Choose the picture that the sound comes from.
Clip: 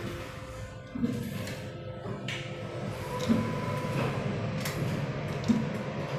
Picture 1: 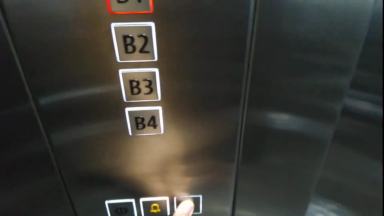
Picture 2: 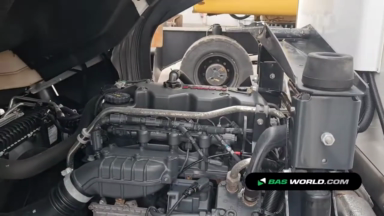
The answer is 1